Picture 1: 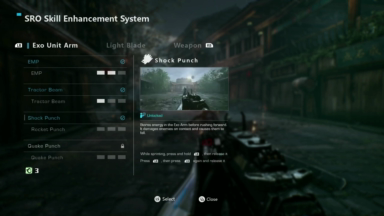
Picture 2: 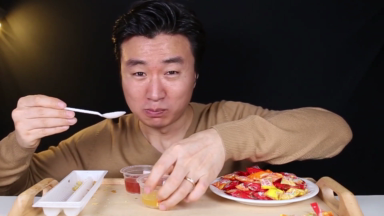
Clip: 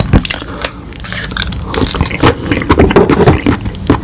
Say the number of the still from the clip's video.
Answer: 2